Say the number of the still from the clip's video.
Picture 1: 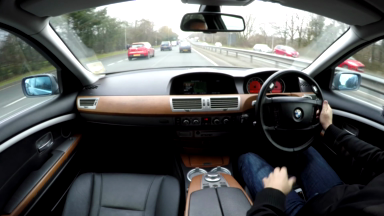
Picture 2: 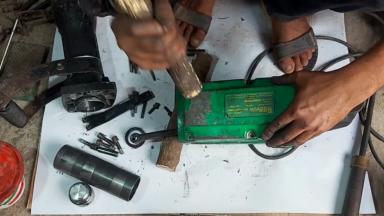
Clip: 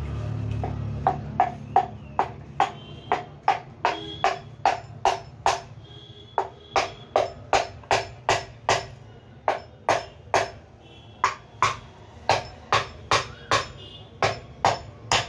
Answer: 2